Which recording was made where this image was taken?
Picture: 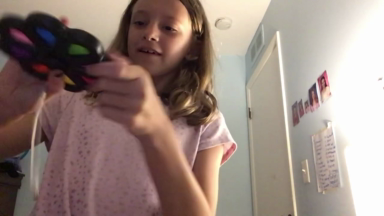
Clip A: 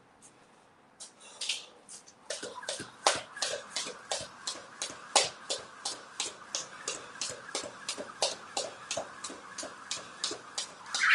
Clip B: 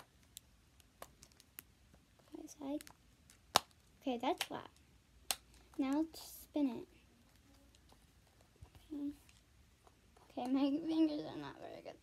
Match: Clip B